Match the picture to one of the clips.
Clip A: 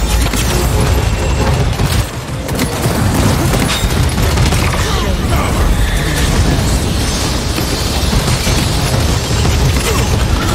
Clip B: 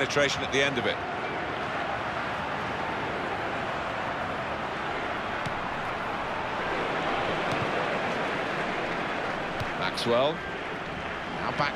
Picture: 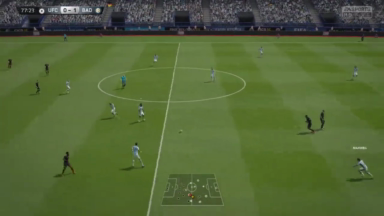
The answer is B